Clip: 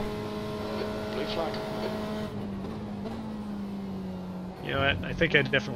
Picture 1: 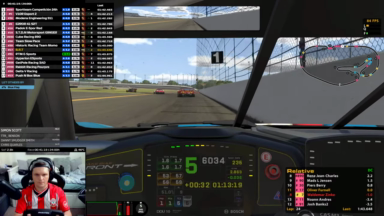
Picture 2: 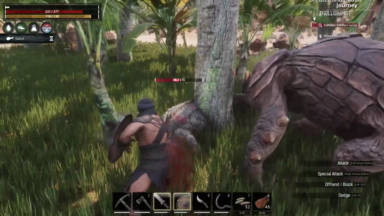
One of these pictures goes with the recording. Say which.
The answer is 1